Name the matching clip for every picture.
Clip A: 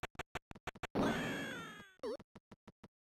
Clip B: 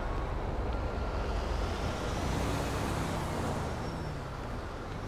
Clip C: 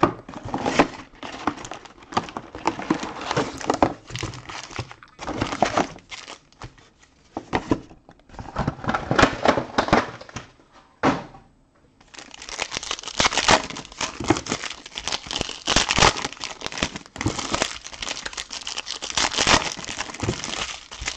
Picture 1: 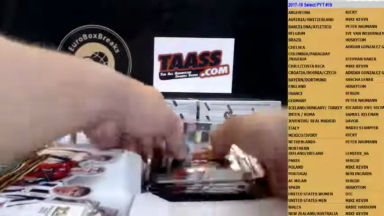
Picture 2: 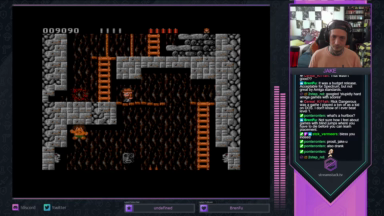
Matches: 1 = C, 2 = A